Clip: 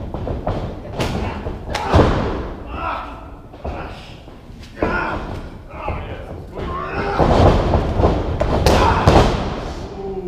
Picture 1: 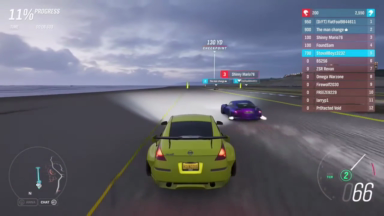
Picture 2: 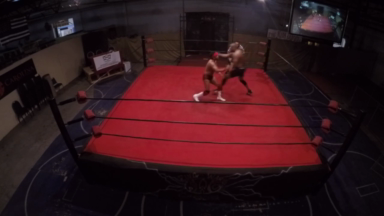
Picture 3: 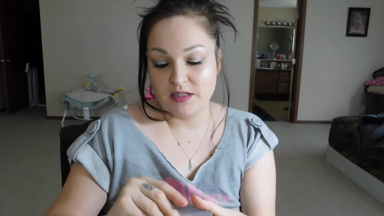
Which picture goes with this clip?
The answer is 2